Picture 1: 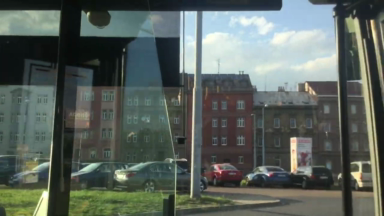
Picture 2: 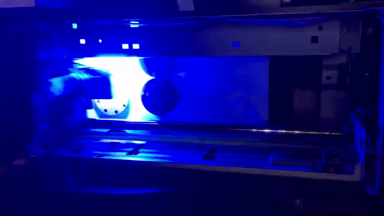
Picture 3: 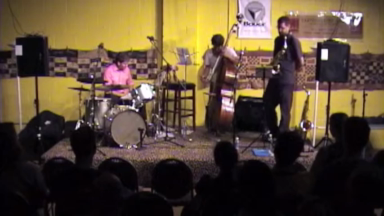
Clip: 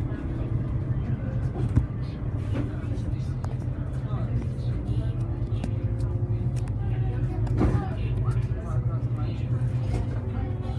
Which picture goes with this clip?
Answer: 1